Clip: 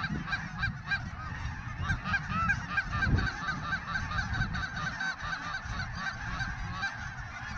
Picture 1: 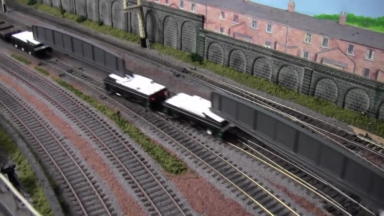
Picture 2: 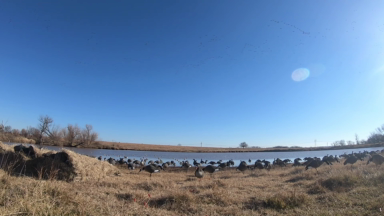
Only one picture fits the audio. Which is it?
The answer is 2